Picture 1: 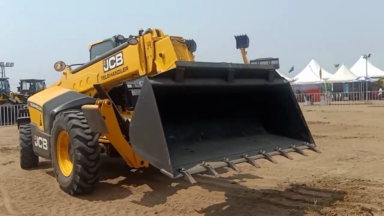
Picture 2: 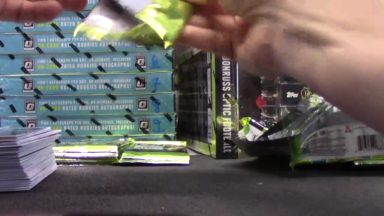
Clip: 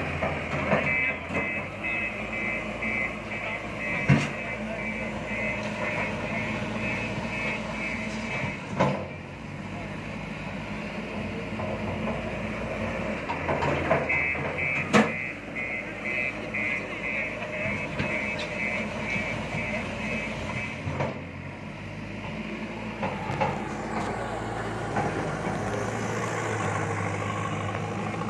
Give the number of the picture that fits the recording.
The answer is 1